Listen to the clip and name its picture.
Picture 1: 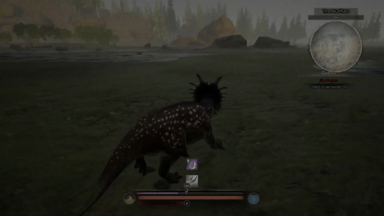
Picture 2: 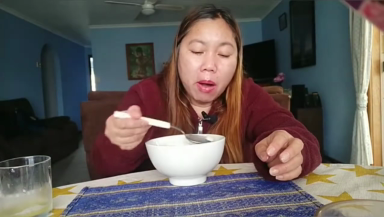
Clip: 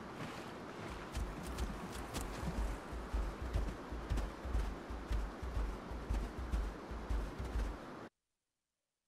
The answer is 1